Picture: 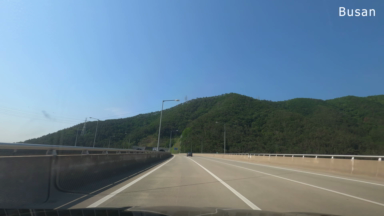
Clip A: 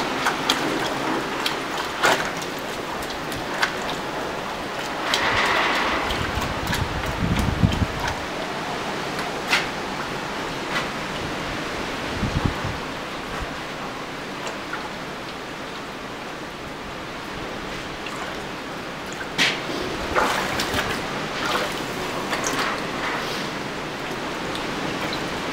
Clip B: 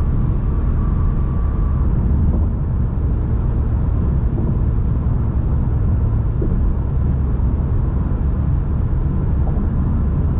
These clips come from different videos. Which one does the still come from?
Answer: B